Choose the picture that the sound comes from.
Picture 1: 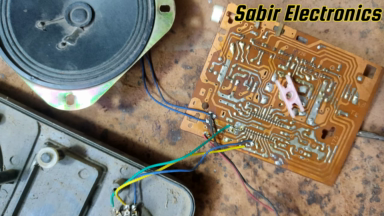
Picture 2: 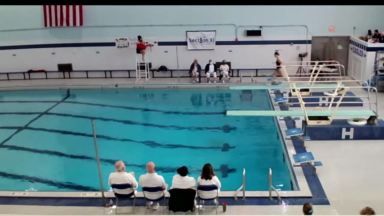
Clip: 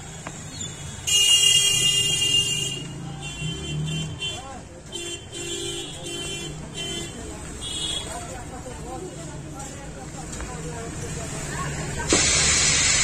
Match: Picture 1